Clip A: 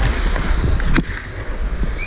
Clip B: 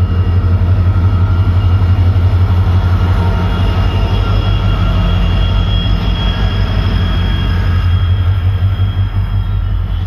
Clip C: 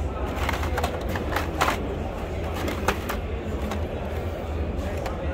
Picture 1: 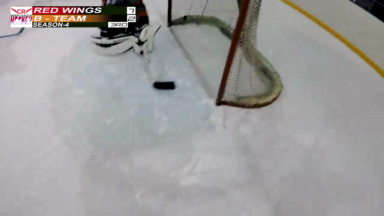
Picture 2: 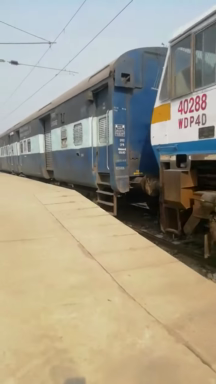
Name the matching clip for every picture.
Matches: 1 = A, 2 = B